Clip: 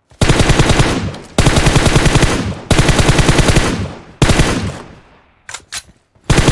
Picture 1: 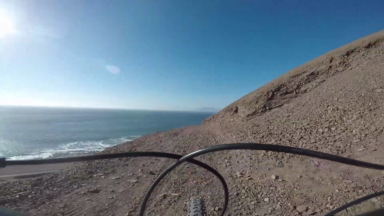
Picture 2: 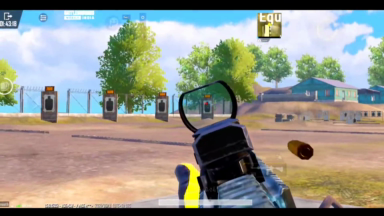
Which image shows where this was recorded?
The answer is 2